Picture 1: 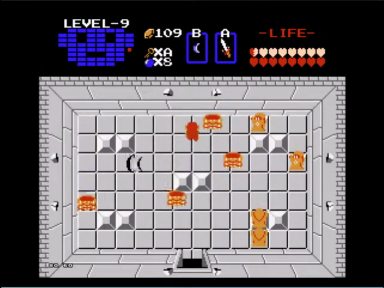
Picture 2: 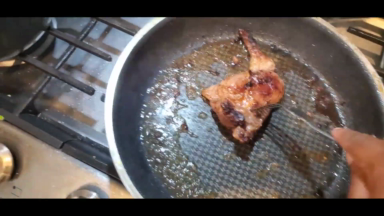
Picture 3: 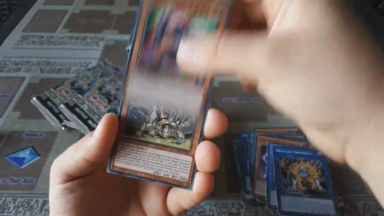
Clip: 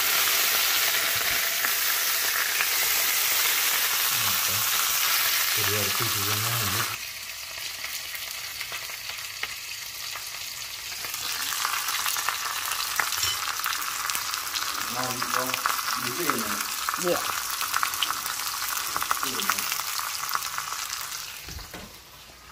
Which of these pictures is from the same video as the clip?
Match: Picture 2